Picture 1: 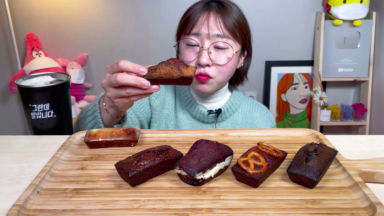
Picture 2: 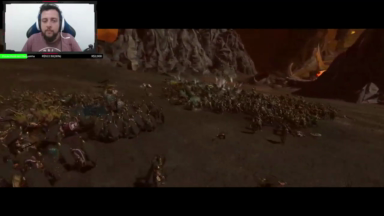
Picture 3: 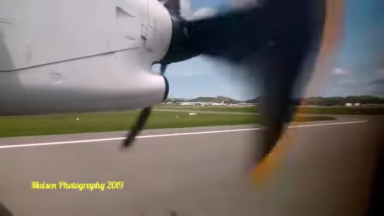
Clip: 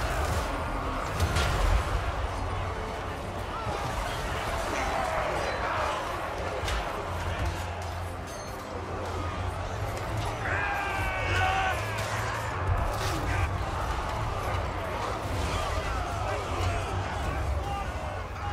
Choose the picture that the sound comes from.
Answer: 2